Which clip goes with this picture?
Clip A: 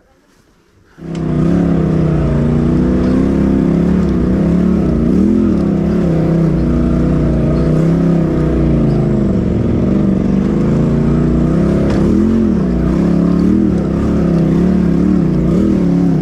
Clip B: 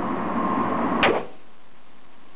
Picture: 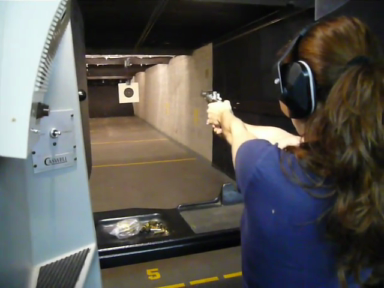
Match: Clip B